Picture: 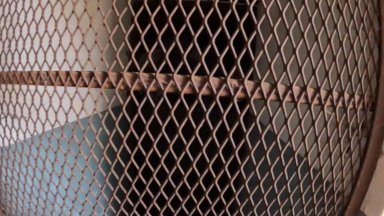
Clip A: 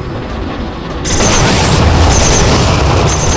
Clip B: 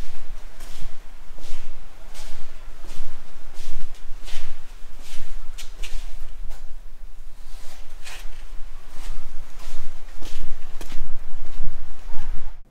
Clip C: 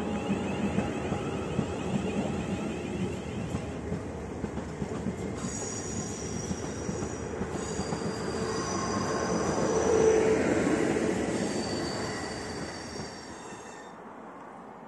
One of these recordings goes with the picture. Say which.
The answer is B